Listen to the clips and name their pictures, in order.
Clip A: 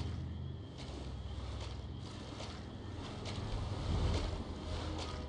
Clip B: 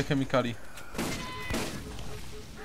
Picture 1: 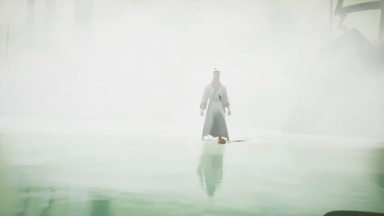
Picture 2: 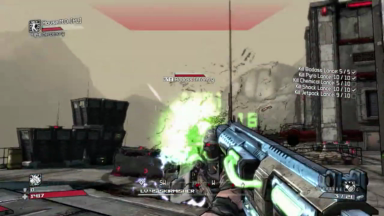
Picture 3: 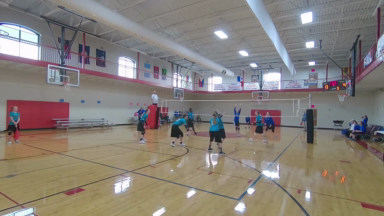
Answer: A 1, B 2